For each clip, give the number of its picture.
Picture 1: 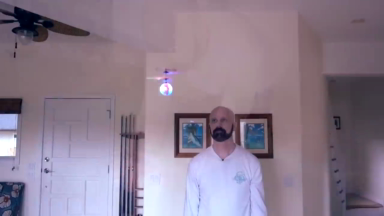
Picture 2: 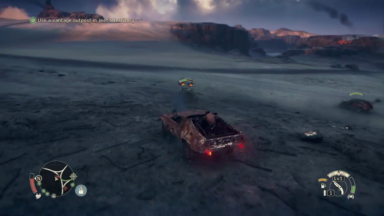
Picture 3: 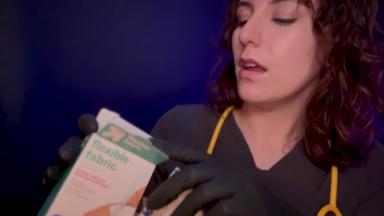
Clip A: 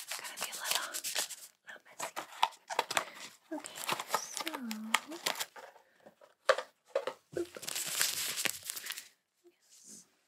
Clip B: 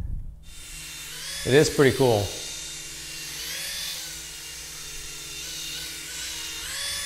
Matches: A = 3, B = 1